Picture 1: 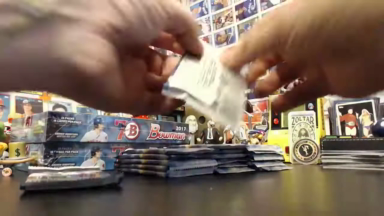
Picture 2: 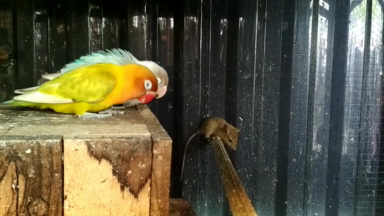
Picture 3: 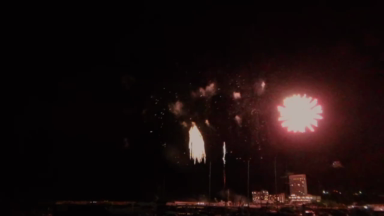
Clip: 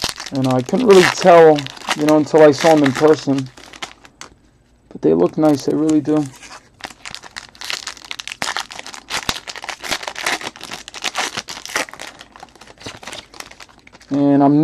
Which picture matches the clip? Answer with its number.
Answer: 1